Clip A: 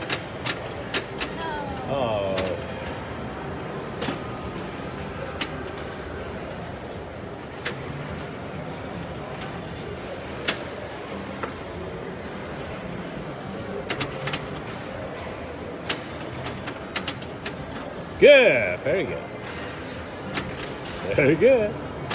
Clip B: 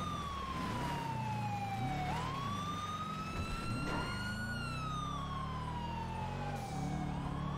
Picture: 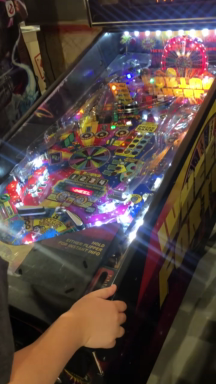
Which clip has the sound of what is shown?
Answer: A